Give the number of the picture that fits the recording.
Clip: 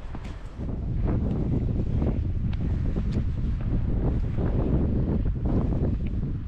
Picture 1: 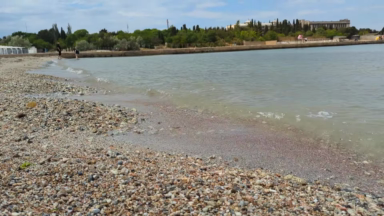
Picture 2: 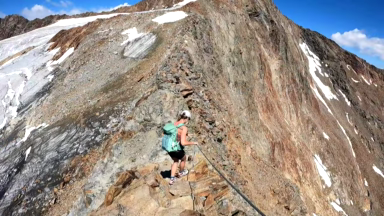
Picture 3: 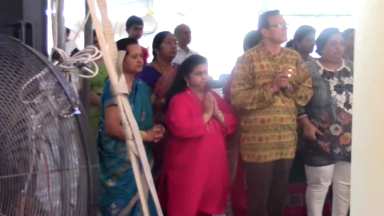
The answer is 2